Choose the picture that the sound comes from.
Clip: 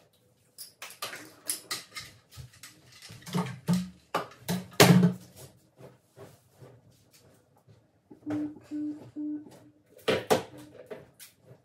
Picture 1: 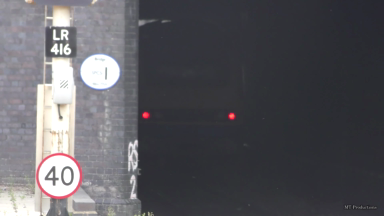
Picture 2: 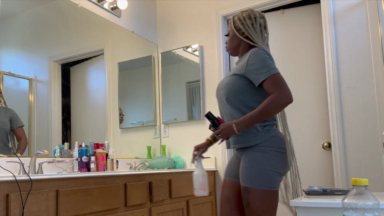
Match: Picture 2